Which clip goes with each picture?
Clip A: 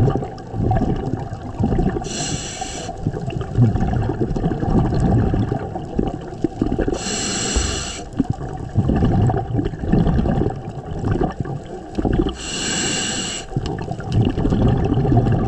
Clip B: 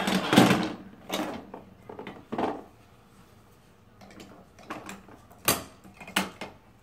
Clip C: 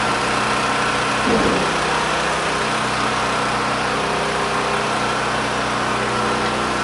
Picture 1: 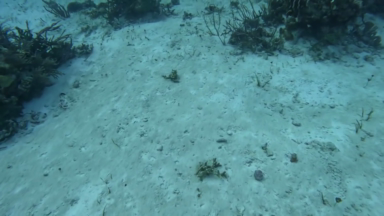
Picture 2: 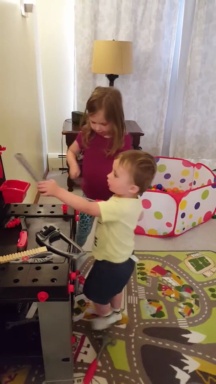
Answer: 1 A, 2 B